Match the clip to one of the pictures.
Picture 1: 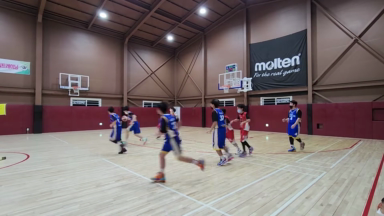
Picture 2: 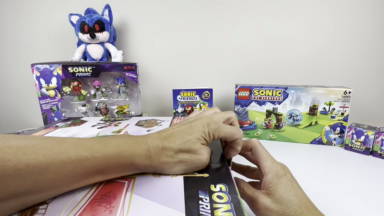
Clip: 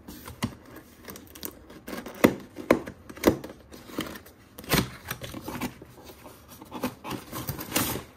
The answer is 2